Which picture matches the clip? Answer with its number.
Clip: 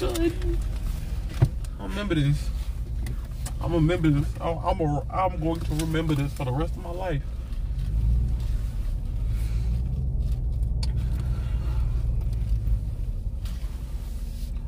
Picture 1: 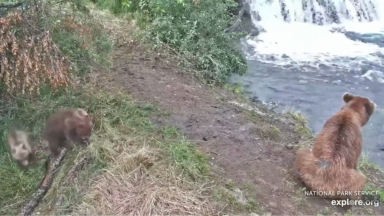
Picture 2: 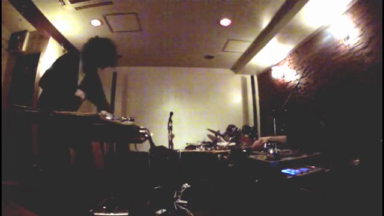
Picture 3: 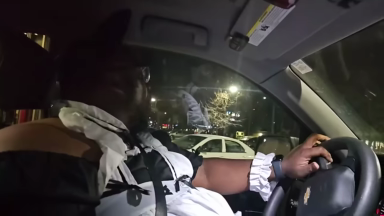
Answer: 3